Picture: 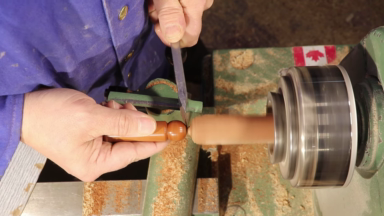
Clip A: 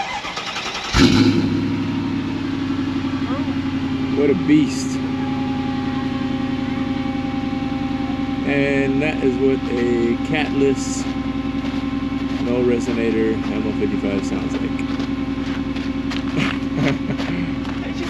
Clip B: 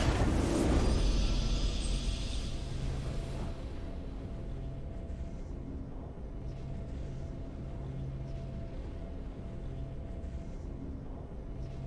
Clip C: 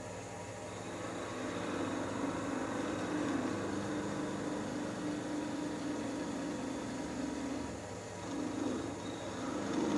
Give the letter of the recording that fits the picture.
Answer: C